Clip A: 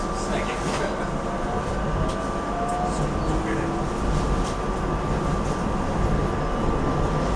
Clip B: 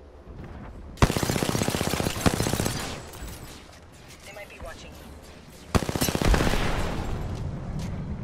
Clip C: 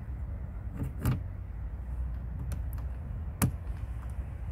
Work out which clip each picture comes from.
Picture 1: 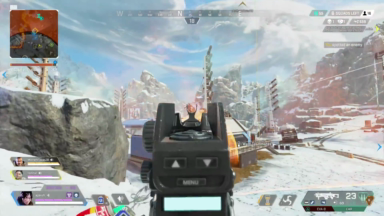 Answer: B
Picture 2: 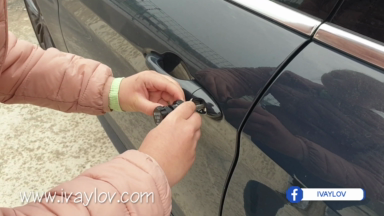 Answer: C